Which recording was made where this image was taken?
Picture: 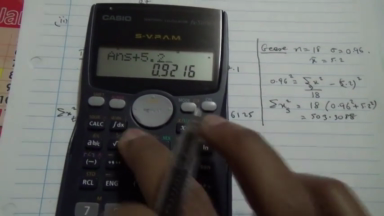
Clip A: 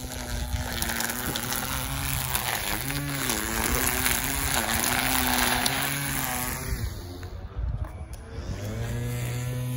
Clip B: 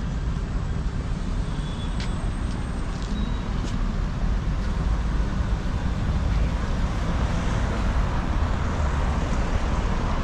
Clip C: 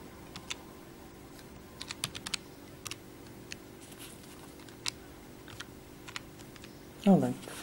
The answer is C